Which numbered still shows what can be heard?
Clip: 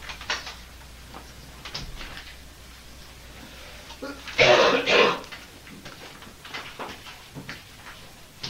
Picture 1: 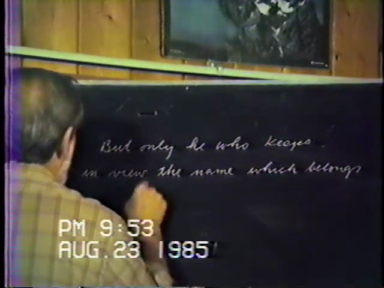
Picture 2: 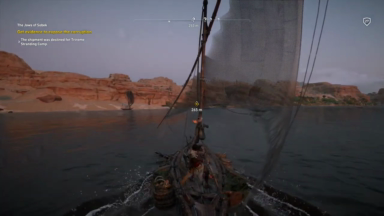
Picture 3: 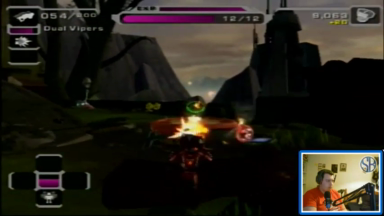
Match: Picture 1